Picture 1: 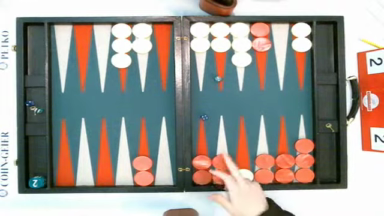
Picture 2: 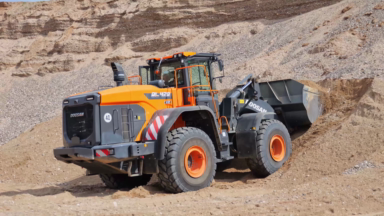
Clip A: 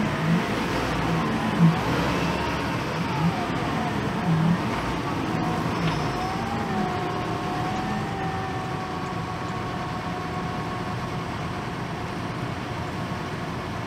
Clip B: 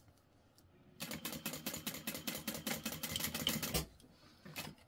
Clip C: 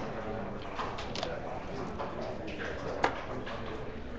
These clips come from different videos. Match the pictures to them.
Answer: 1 C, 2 A